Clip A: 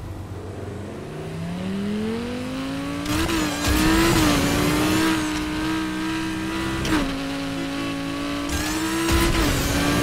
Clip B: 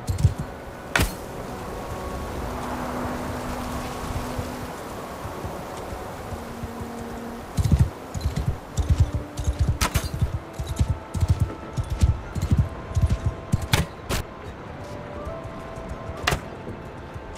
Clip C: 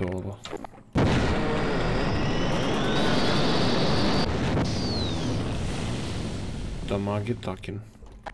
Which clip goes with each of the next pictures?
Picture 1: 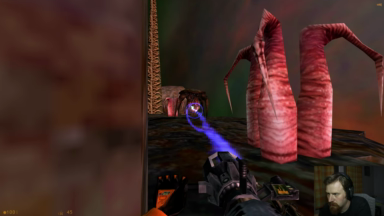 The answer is C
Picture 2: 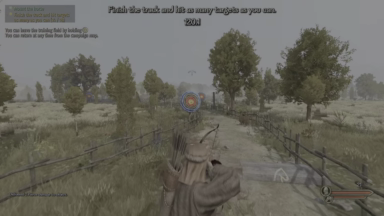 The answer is B